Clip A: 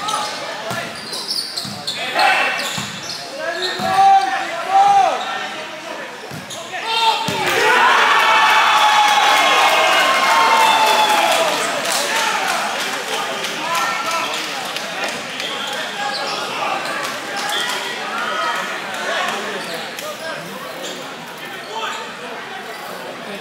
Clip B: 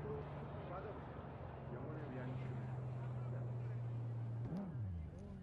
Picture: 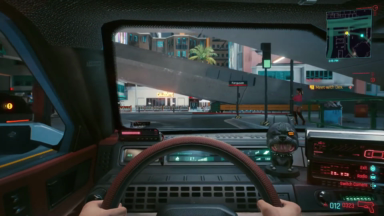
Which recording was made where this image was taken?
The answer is B